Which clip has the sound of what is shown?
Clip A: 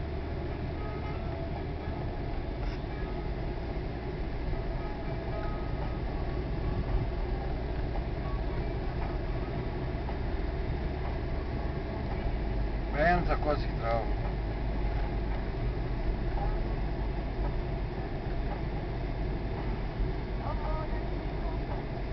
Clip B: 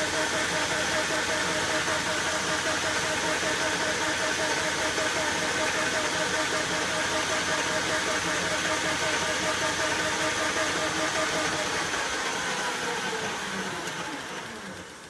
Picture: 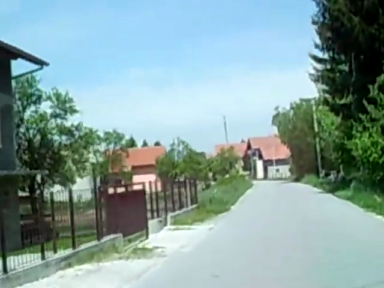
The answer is A